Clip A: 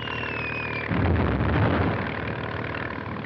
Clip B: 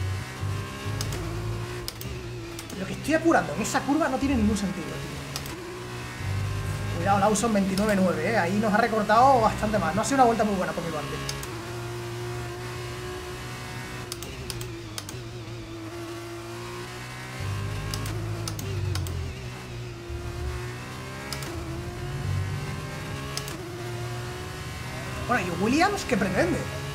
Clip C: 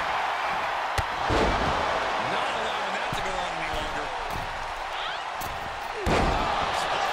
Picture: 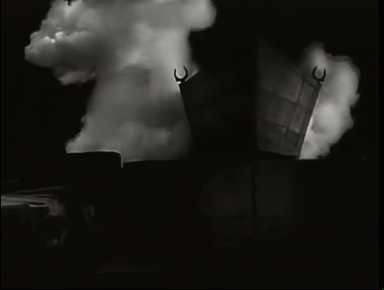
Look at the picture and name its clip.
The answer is A